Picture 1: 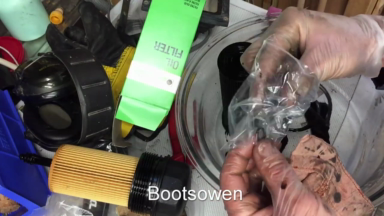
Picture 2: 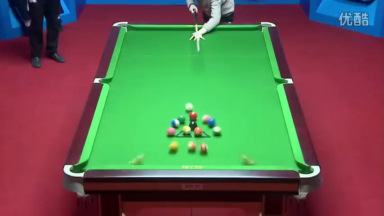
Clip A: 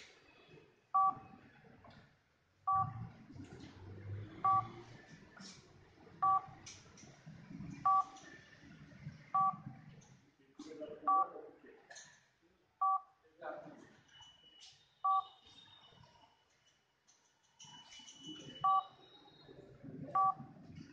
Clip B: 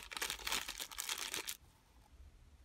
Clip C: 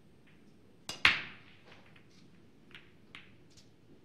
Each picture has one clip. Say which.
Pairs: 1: B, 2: C